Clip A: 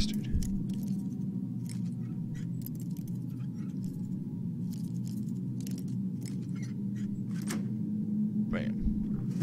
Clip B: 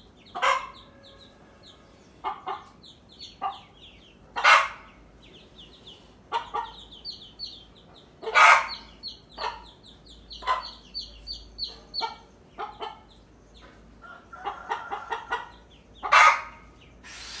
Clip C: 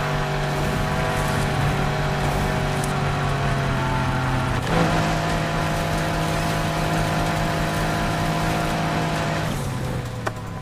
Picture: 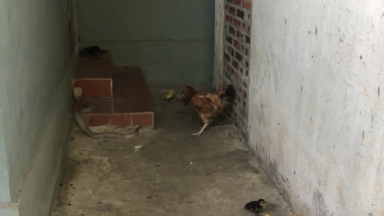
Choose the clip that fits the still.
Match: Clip B